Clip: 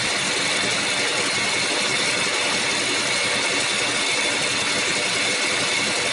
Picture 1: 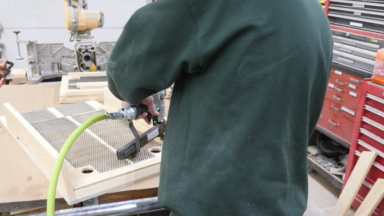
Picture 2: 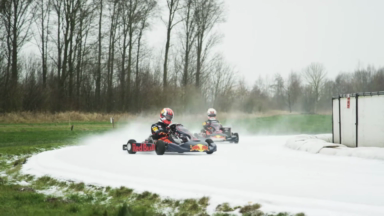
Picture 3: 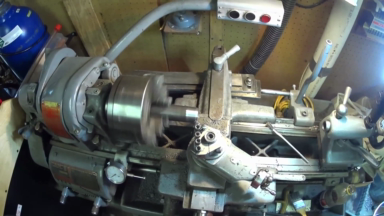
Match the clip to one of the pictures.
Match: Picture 3